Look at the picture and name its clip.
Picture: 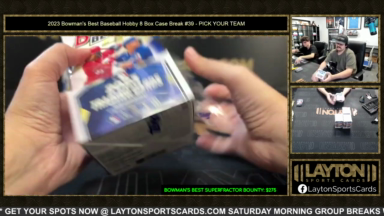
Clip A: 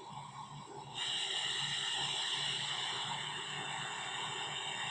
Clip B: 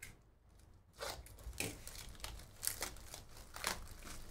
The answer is B